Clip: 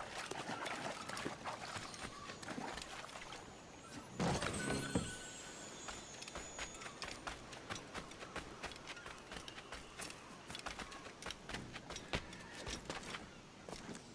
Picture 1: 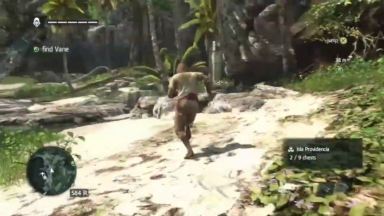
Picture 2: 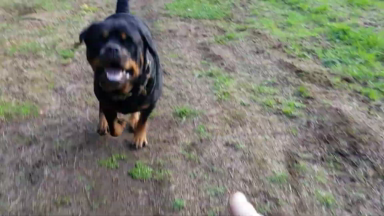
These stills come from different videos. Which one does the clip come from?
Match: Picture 1